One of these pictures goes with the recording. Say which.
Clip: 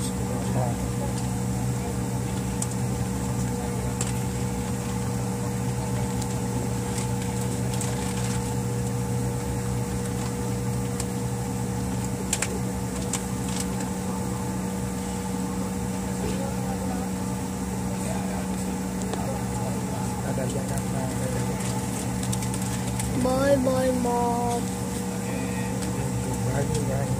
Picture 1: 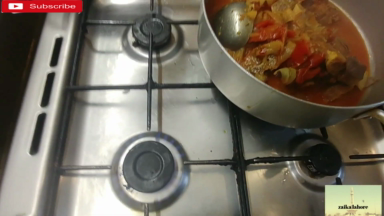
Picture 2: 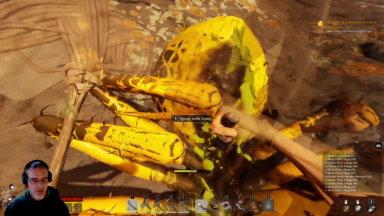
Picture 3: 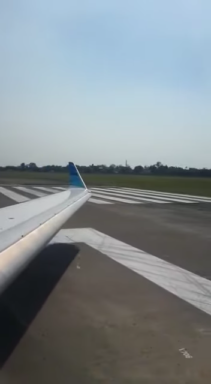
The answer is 3